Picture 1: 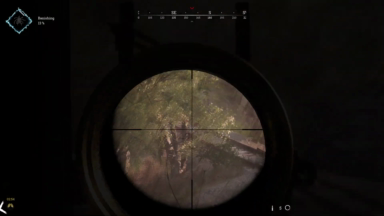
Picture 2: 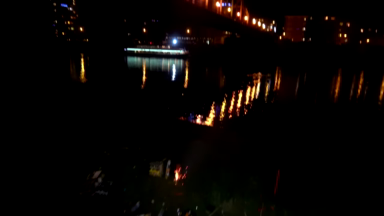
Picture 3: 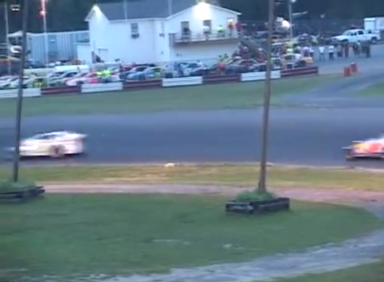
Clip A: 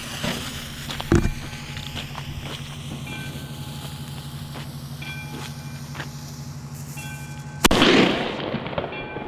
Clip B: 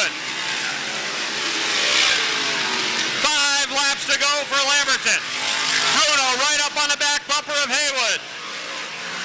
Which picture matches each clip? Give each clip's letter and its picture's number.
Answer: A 2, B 3